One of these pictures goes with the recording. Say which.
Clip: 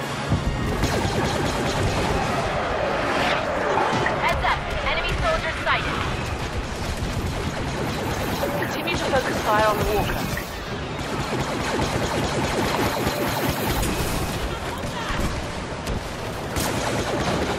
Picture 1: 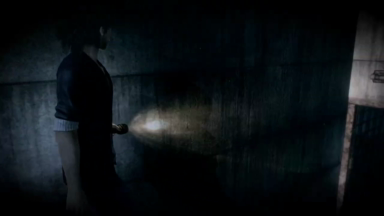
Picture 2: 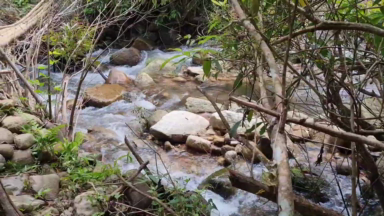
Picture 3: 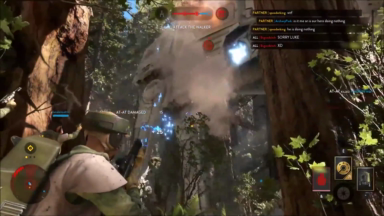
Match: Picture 3